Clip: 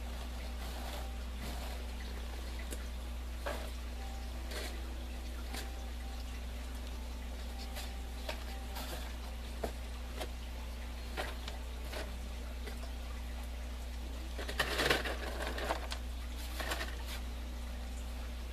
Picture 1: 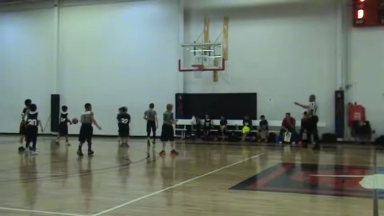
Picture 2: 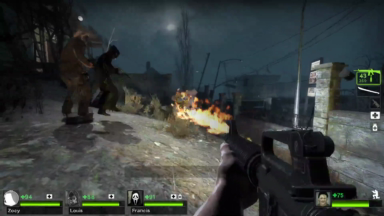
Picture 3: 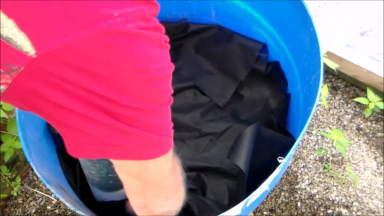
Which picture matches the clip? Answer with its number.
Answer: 3